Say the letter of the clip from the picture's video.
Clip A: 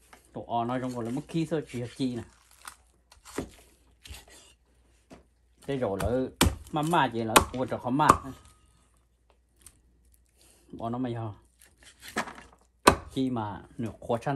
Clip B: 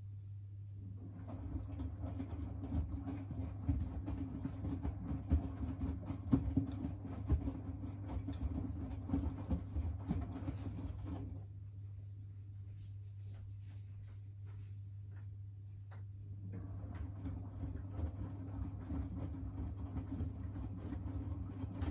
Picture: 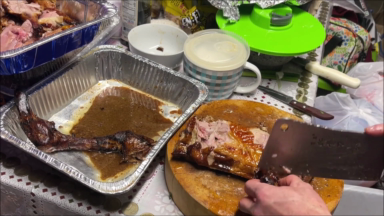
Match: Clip A